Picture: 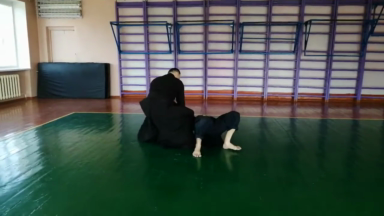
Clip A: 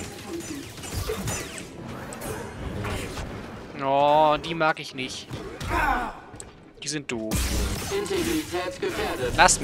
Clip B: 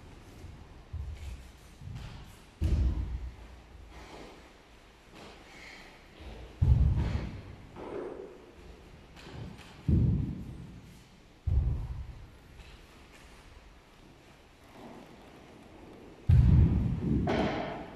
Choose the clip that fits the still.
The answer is B